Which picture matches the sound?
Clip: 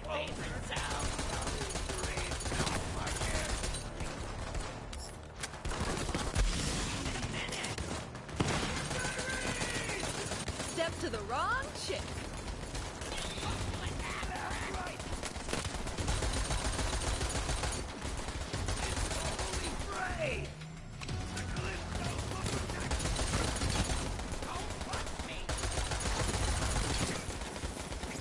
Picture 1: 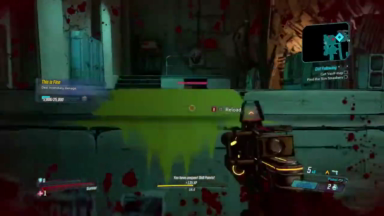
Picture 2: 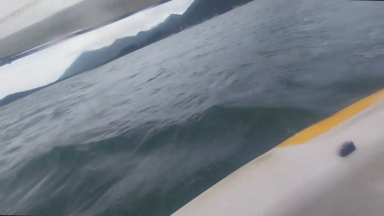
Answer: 1